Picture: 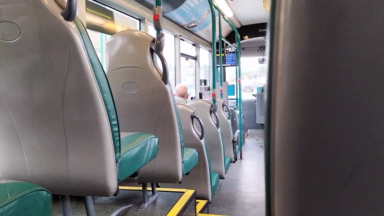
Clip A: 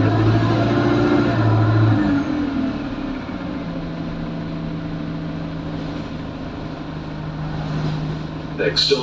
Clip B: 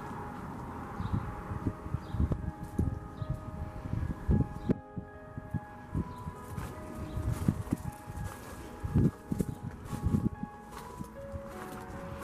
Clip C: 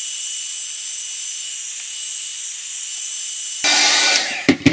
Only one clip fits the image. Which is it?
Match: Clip A